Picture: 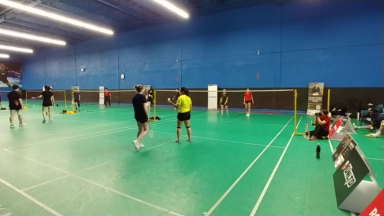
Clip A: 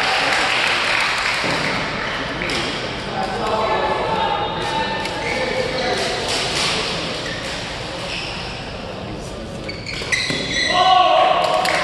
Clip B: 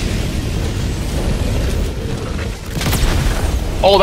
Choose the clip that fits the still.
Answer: A